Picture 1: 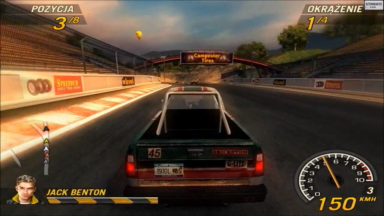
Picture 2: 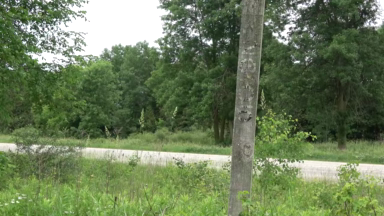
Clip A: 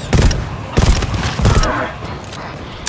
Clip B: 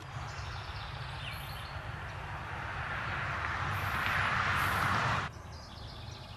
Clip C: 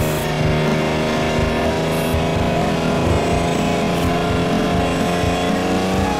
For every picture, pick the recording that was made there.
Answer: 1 C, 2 B